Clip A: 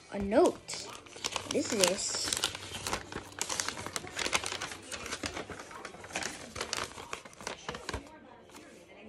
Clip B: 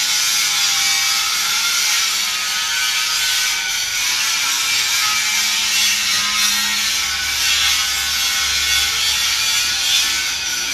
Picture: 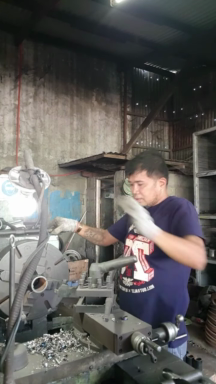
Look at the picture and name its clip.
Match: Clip B